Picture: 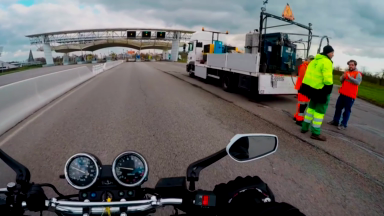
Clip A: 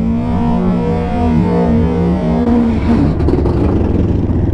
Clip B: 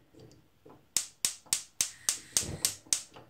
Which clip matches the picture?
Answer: A